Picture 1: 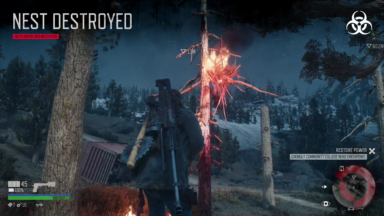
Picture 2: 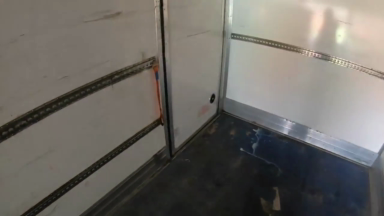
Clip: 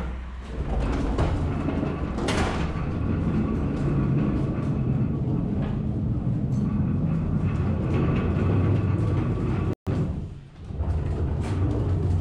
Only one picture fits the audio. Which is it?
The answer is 2